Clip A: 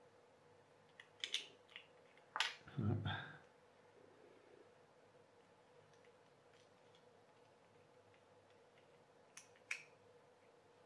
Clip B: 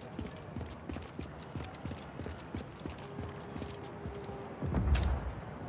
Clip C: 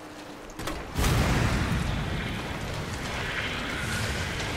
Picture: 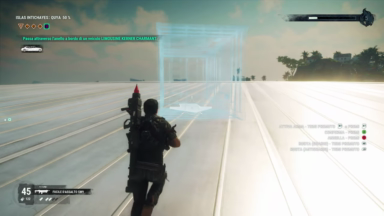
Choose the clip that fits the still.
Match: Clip B